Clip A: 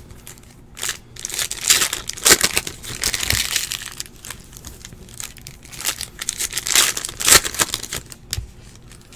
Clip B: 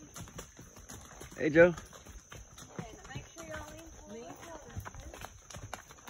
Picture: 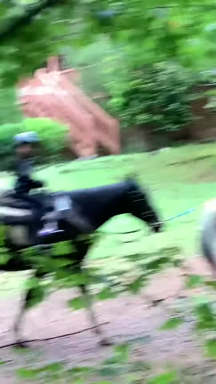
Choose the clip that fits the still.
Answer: B